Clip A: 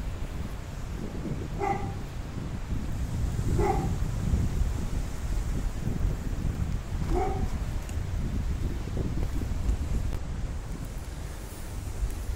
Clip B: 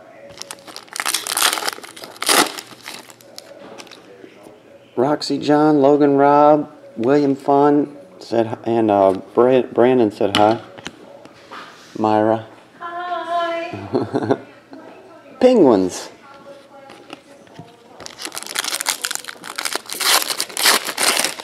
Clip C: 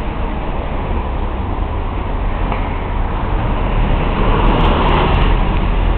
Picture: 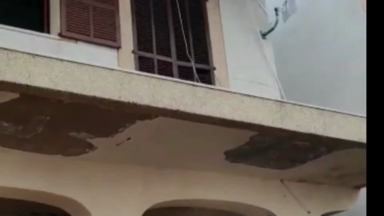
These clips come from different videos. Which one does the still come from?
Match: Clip A